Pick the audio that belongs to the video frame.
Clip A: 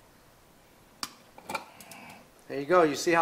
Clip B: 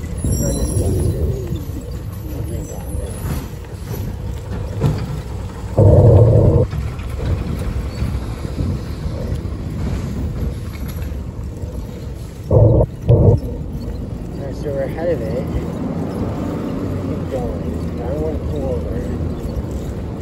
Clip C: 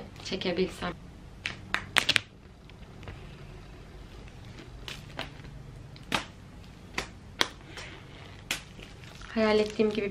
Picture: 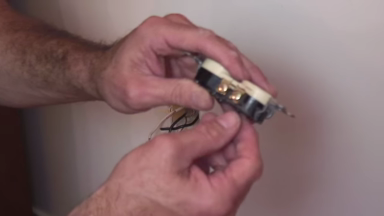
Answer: A